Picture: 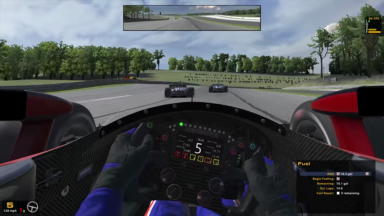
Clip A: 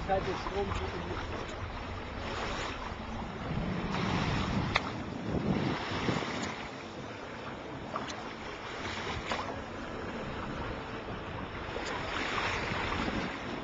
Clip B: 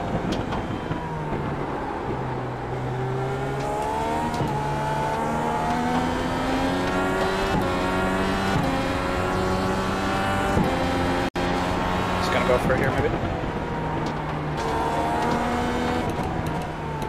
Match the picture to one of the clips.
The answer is B